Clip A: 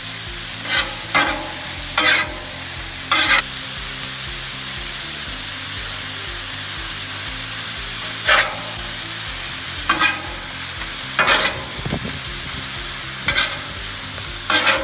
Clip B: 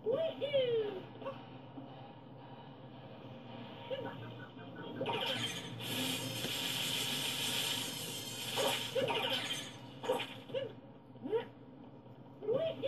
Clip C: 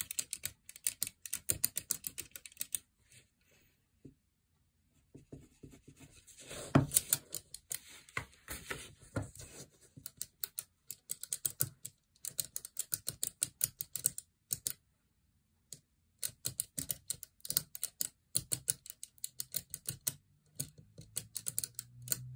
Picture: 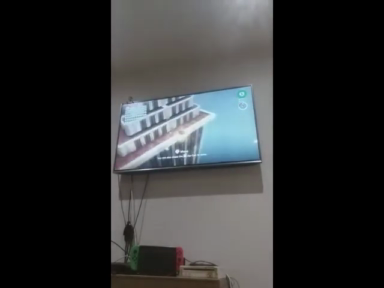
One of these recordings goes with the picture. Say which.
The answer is B